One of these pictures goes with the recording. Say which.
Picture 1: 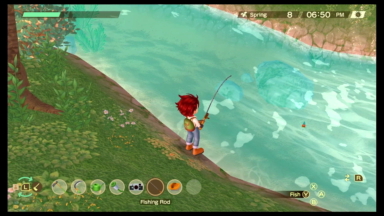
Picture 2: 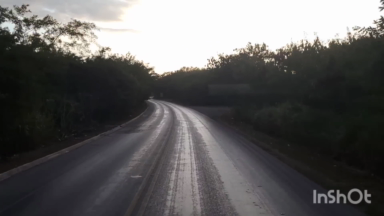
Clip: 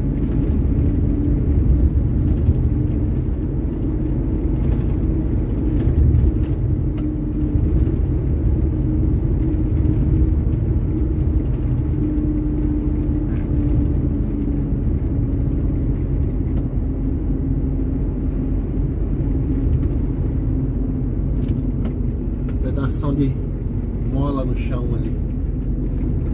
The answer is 2